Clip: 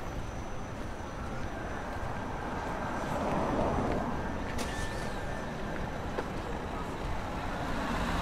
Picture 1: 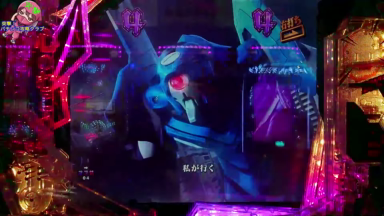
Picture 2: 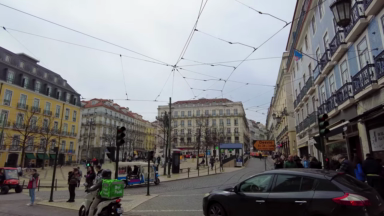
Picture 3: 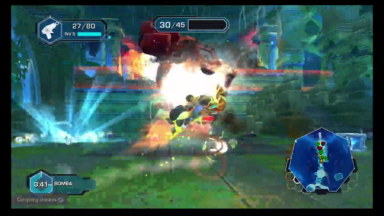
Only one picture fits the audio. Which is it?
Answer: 2